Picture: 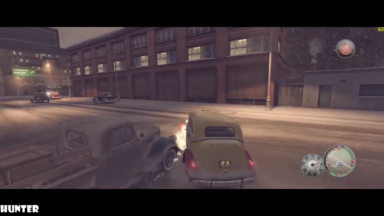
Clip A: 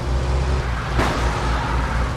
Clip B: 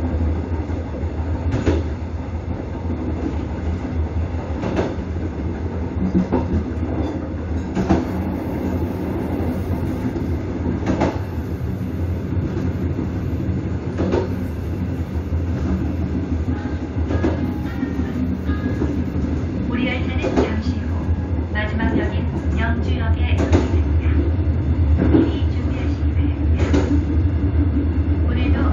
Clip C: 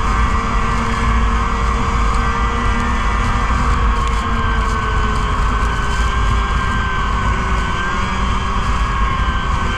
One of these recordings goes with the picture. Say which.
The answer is A